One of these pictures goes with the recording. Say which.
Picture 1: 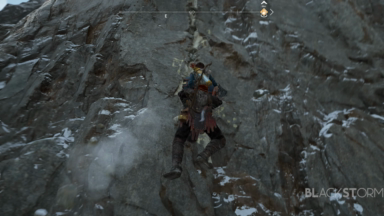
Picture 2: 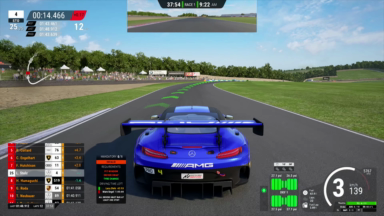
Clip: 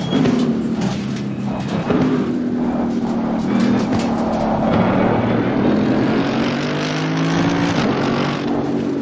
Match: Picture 2